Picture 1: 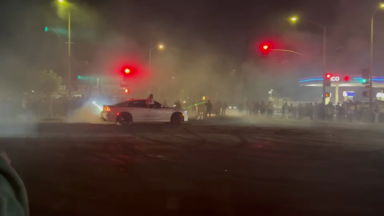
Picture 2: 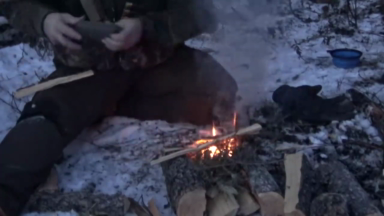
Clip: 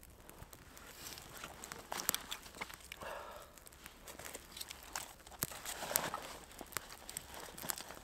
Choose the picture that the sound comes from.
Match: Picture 2